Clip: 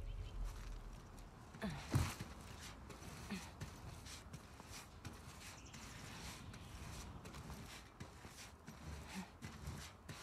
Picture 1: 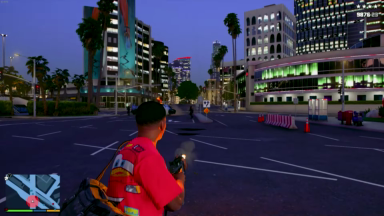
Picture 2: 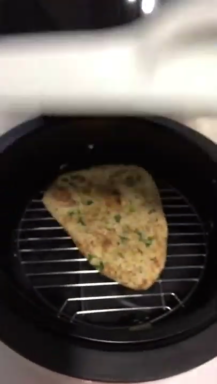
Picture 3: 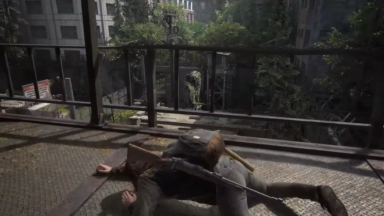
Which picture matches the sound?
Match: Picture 3